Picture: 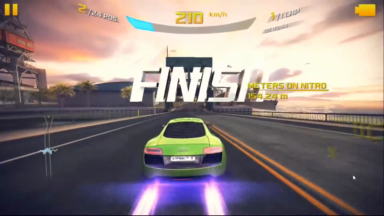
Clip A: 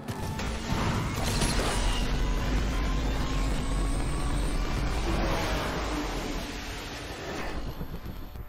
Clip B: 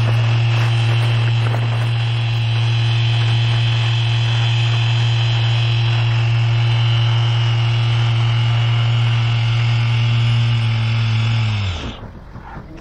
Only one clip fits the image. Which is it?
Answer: A